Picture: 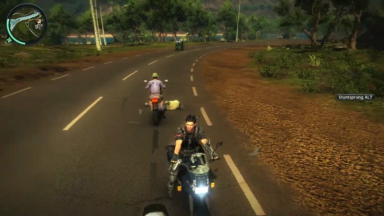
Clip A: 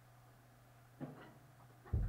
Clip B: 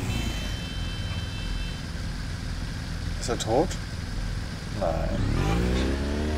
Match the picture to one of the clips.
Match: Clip B